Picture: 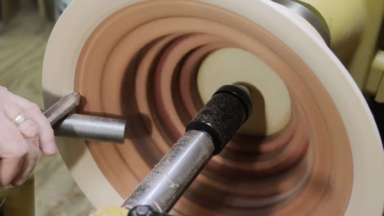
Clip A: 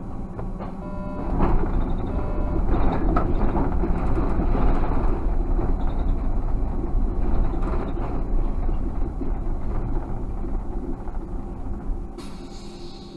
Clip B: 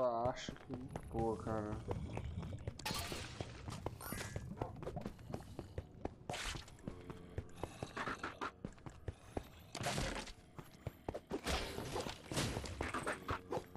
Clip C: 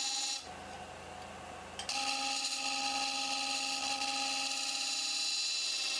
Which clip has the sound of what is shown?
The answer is C